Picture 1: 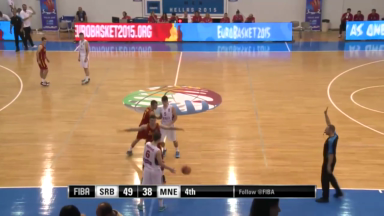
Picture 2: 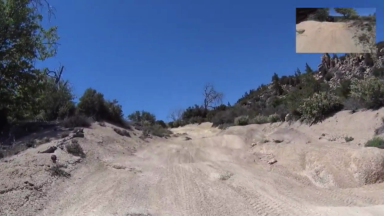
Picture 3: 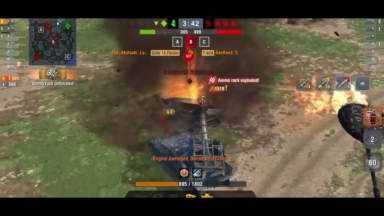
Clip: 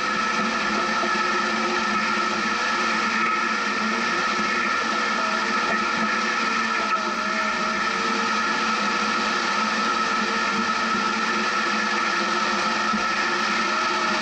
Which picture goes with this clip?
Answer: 2